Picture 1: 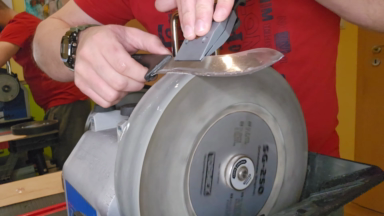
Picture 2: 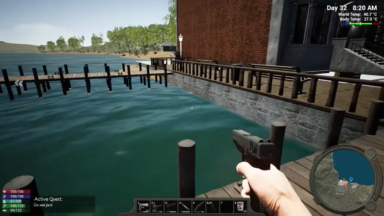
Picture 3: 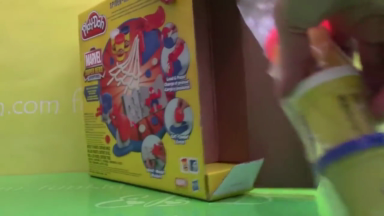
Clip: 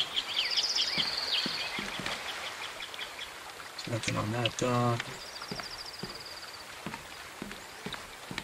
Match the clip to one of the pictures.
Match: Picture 2